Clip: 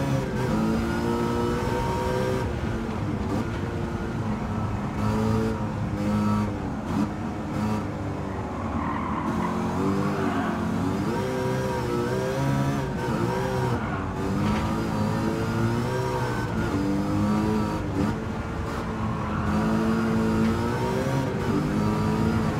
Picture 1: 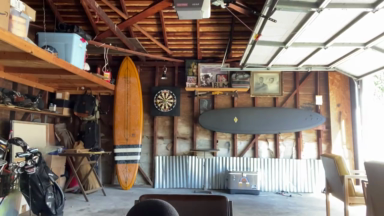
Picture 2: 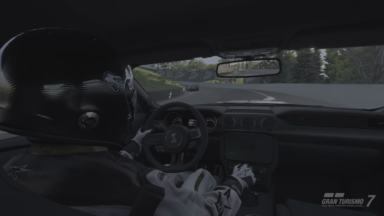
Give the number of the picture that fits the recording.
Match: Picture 2